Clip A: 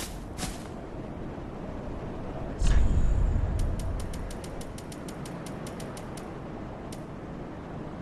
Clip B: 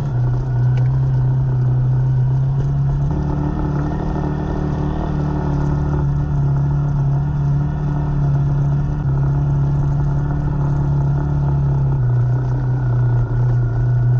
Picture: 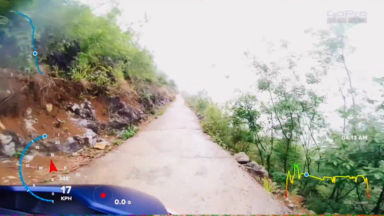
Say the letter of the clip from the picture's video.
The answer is B